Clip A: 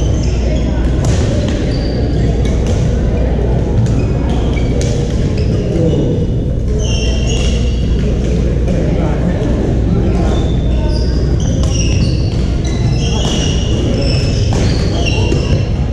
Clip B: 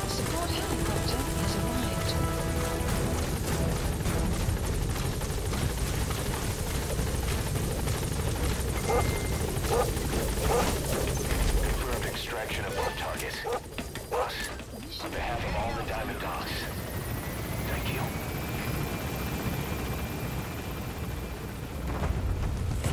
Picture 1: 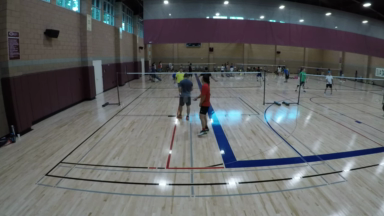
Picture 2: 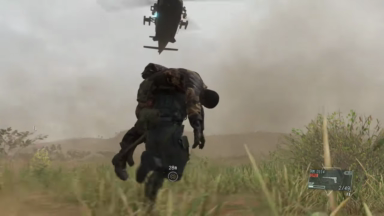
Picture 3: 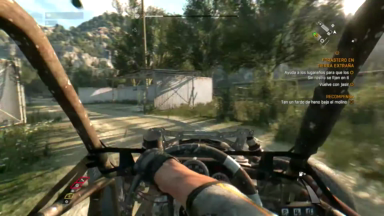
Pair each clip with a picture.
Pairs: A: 1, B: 2